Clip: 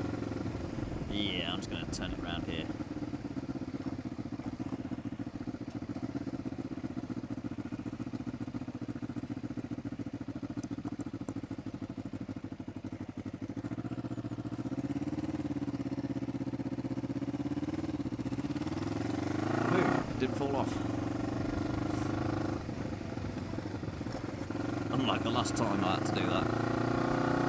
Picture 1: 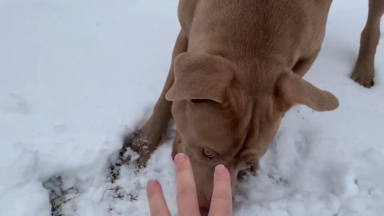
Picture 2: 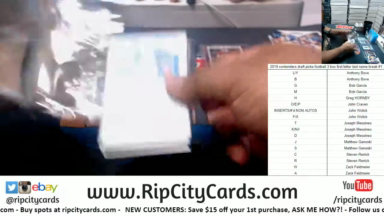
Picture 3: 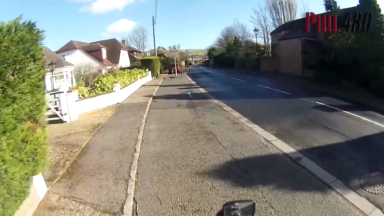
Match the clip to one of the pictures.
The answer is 3